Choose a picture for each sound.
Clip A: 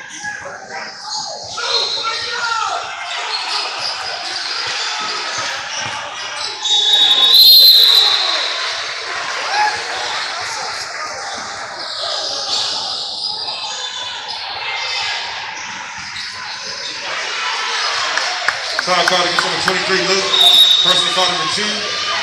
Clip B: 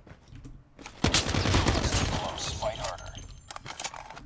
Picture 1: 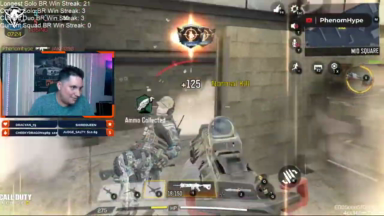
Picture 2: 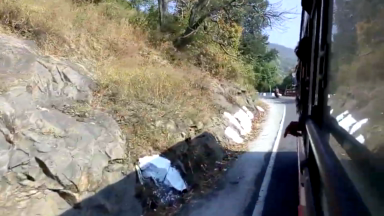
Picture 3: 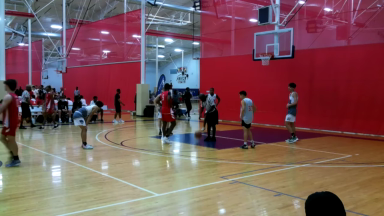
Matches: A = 3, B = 1